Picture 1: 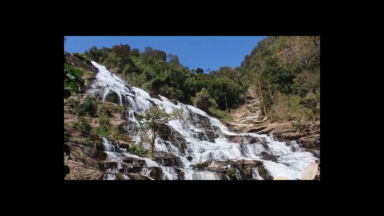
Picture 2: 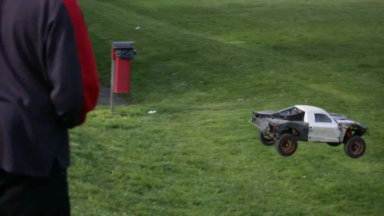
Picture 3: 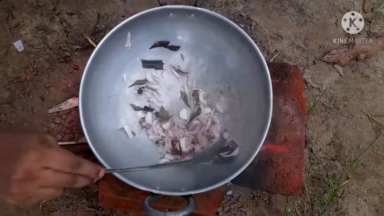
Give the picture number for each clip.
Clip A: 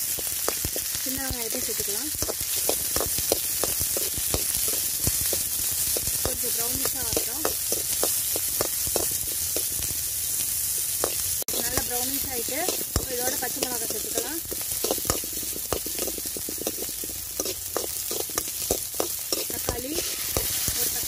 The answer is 3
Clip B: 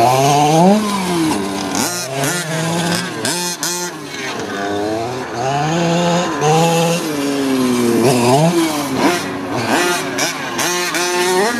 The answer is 2